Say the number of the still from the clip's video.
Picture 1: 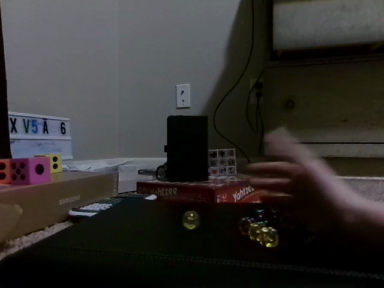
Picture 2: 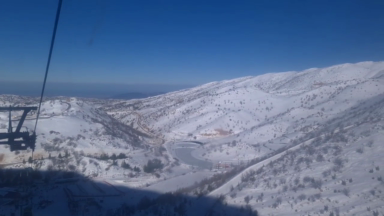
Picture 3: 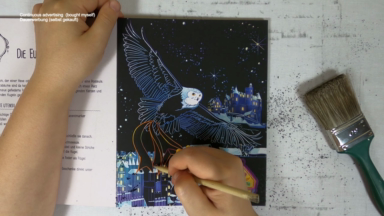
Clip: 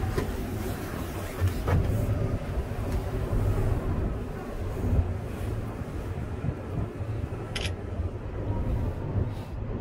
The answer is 2